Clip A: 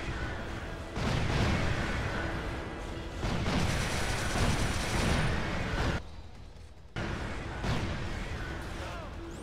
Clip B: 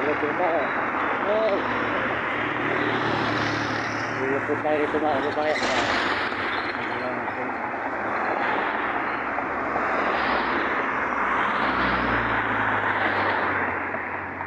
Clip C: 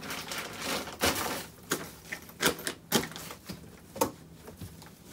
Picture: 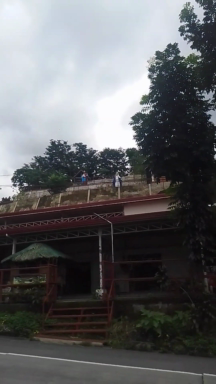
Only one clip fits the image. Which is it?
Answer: B